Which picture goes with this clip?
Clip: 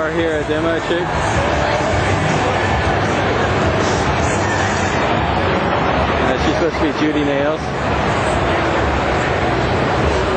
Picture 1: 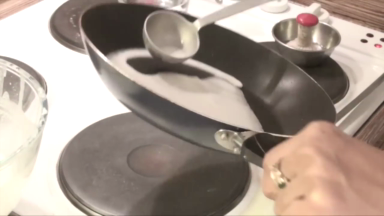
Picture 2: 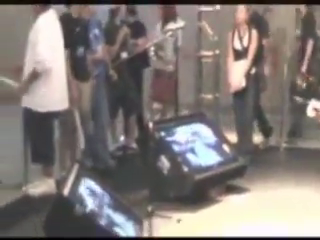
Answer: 2